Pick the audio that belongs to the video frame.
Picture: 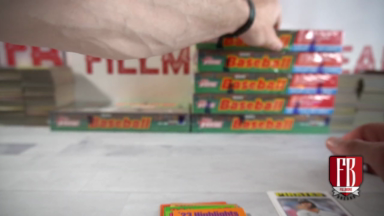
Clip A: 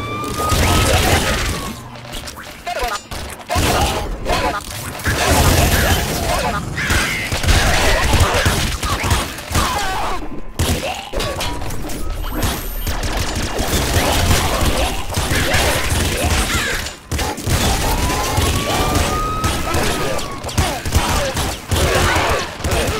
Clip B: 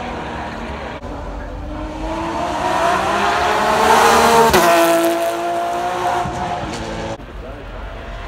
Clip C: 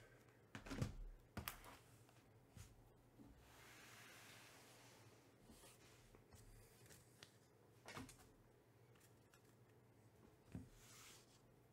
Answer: C